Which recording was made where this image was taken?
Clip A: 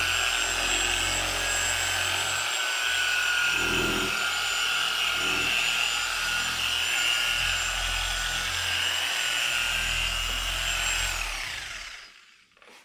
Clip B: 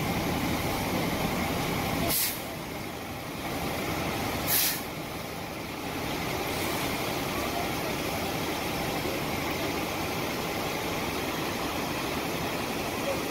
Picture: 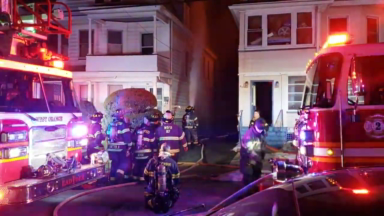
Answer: B